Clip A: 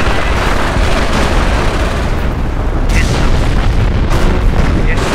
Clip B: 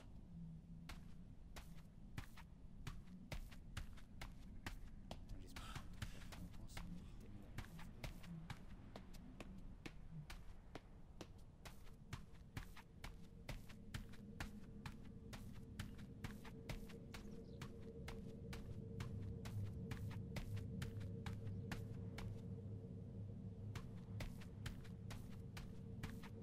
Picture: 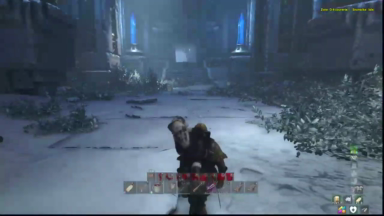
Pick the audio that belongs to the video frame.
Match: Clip B